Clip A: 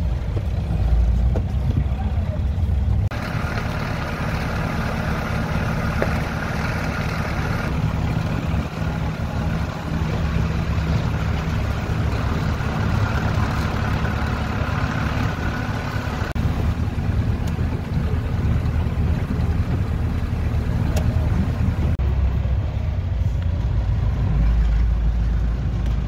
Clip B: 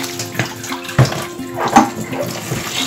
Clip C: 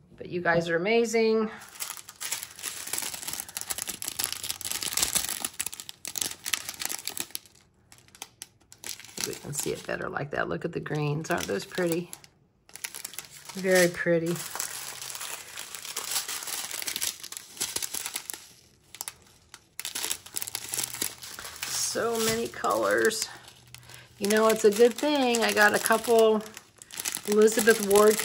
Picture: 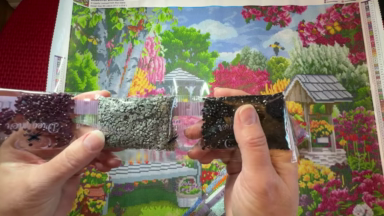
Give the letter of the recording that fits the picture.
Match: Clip C